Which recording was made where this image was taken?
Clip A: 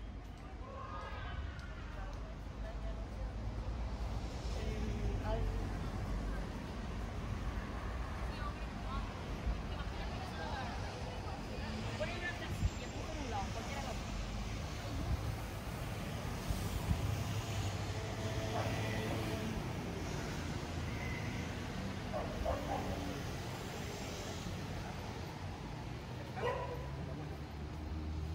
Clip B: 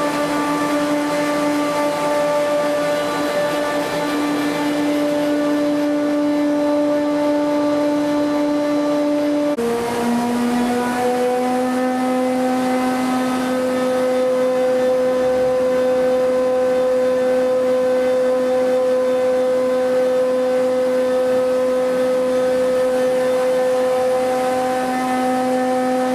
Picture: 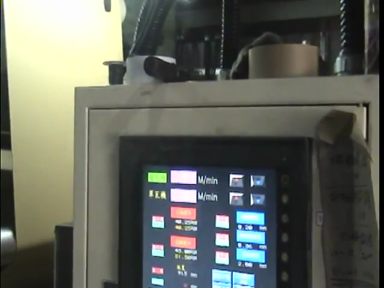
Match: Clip B